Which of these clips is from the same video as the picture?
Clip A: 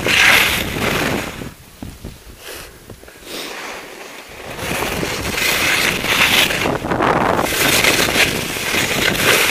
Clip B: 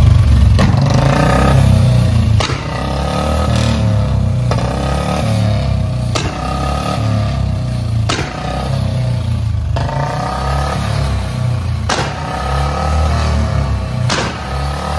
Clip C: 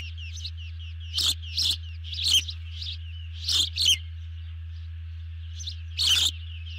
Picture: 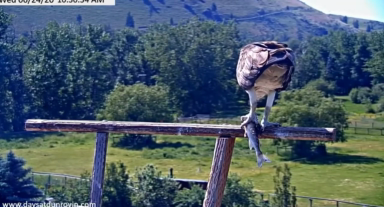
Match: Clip C